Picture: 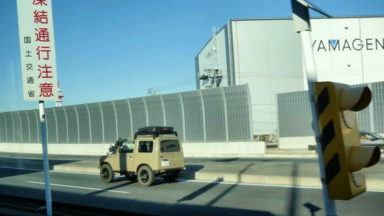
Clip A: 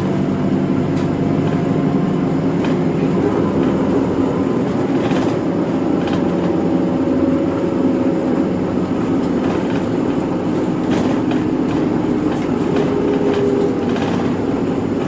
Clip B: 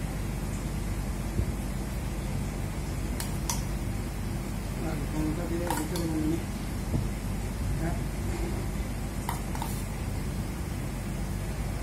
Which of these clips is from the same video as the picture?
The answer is A